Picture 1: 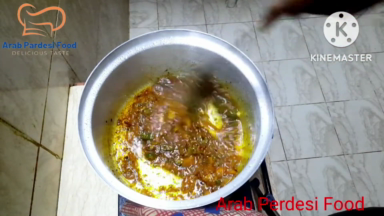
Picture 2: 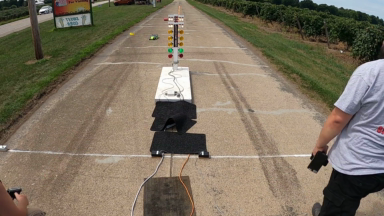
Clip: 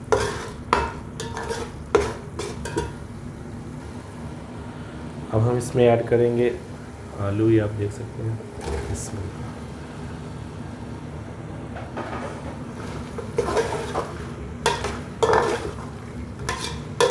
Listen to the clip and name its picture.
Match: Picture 1